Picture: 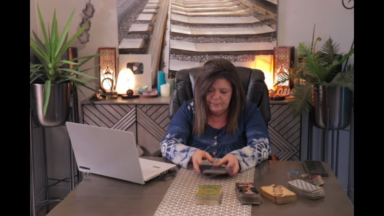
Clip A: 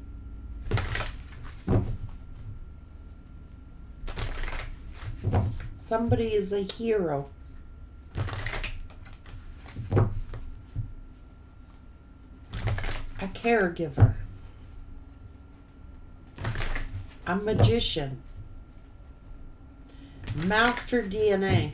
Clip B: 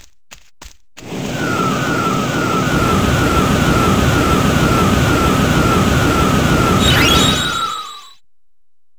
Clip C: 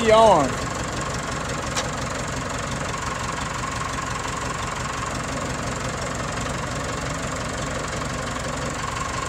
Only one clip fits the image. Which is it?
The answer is A